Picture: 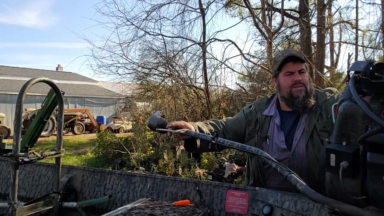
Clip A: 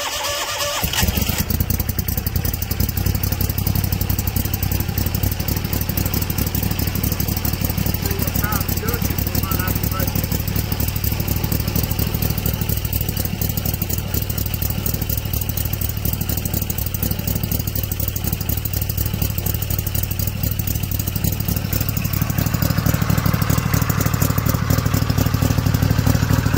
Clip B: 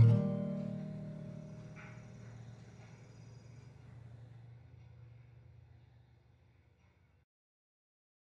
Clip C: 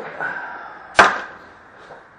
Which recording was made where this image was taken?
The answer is A